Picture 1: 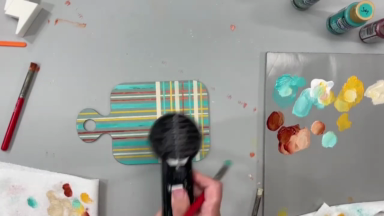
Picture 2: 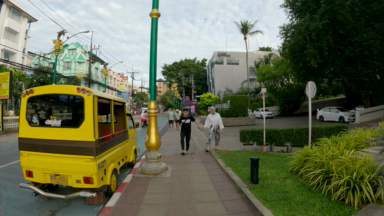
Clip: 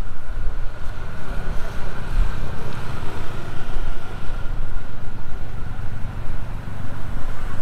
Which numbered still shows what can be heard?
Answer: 2